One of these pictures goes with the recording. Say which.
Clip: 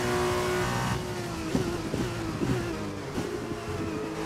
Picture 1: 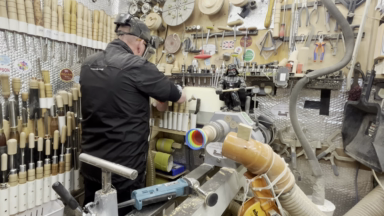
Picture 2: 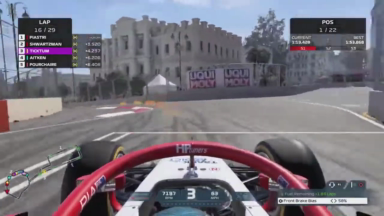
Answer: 2